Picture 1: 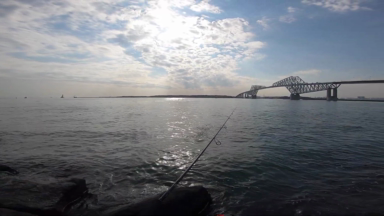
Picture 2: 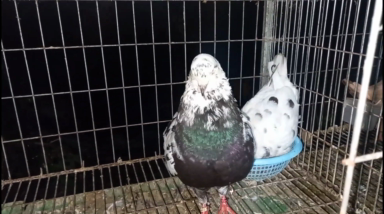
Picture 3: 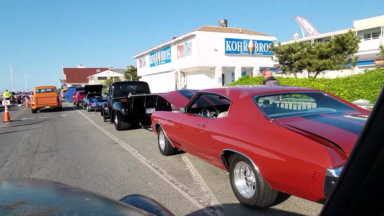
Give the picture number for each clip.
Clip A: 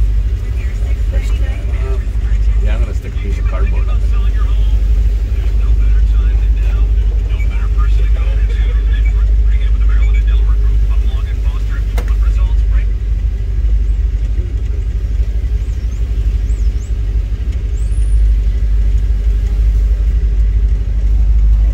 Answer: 3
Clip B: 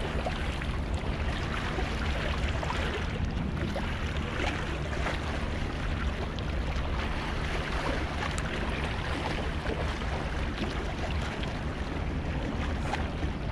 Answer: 1